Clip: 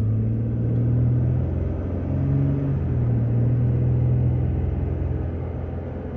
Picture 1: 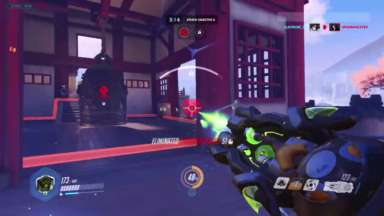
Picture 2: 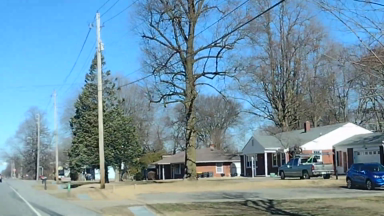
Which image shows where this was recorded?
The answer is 2